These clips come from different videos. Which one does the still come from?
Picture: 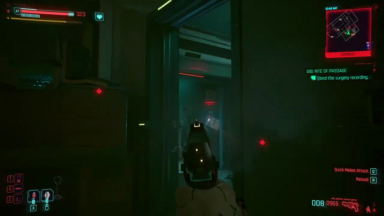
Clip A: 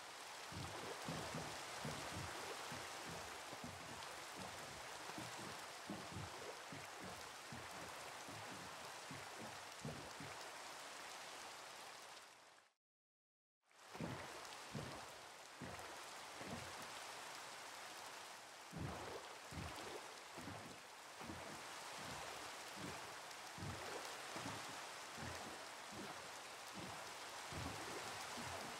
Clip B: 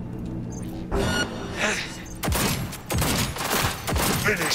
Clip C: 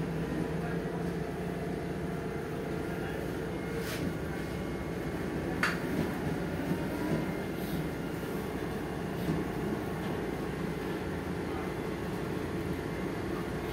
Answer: B